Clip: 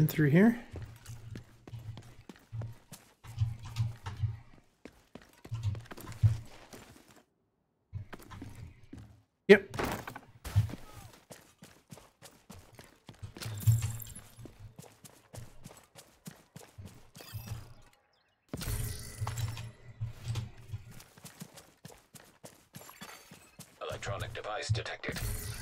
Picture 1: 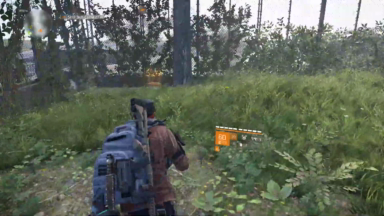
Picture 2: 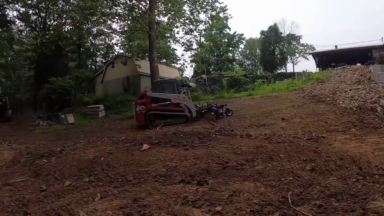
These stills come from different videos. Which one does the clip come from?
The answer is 1